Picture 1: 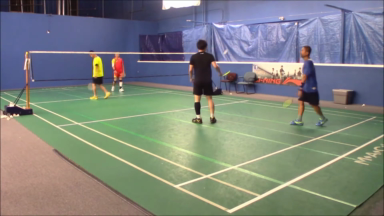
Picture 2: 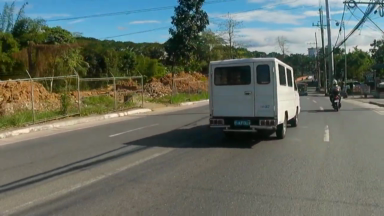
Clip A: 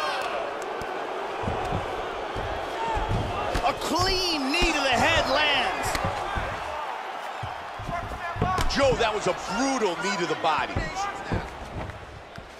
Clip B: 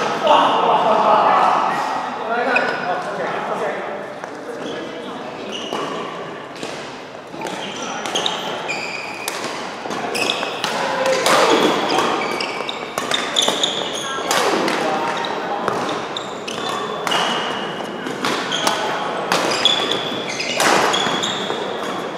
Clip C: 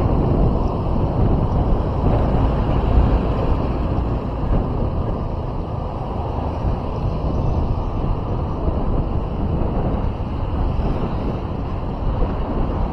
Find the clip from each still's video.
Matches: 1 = B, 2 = C